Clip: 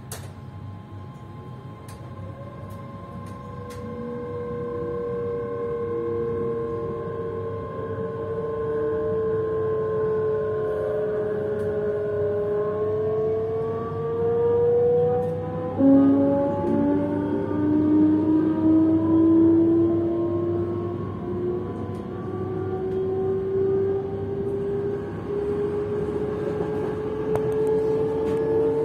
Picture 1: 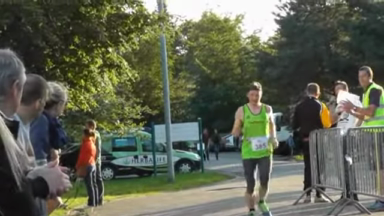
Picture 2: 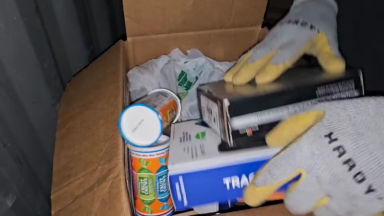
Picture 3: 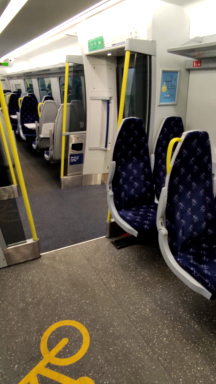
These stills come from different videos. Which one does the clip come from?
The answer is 3